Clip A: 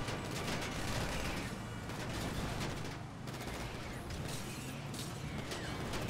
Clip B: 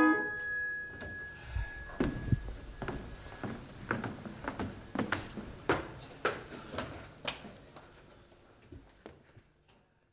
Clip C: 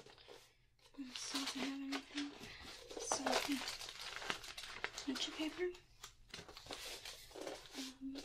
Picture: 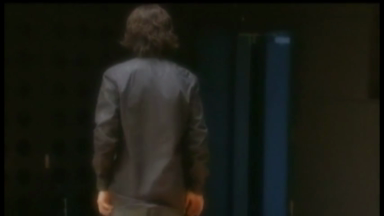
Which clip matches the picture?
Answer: B